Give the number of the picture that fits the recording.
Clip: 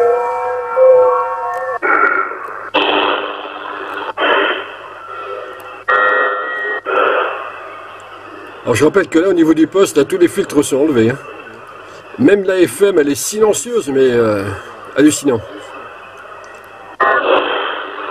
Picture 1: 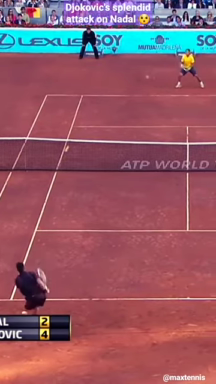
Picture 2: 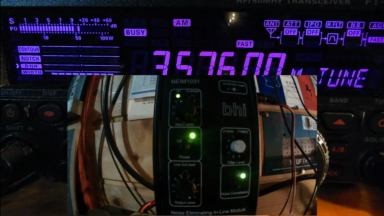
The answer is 2